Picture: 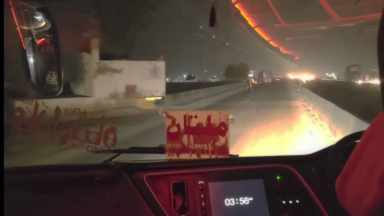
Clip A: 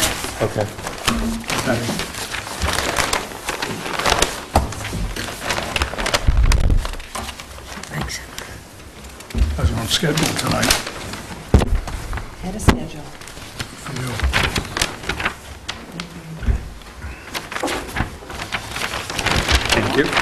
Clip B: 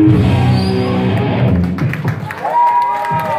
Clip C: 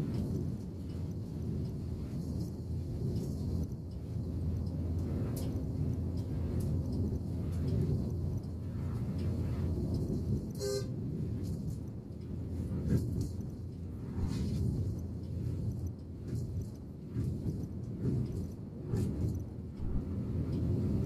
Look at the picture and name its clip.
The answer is C